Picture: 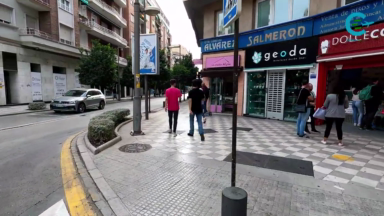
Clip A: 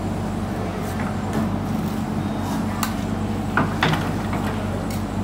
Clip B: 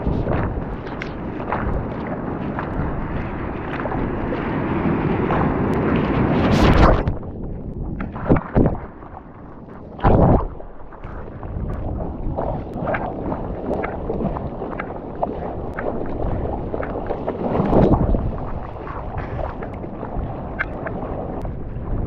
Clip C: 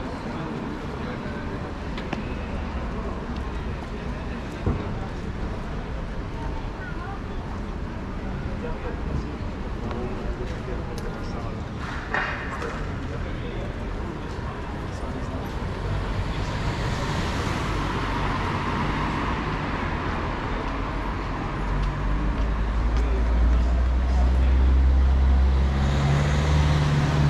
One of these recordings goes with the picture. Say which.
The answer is C